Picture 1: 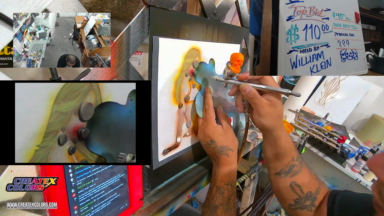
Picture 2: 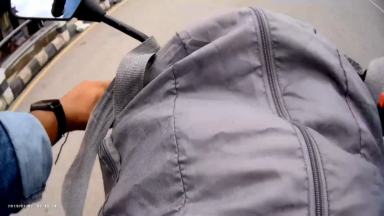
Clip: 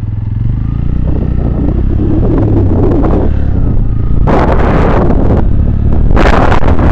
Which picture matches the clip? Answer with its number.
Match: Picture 2